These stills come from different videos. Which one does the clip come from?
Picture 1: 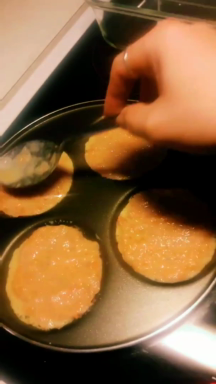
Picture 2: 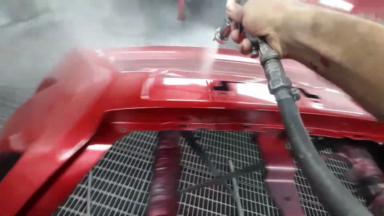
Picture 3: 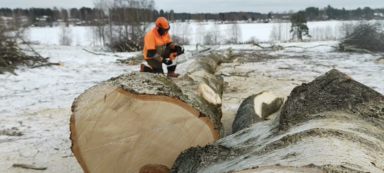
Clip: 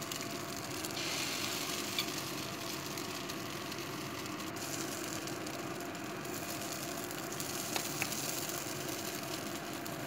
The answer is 1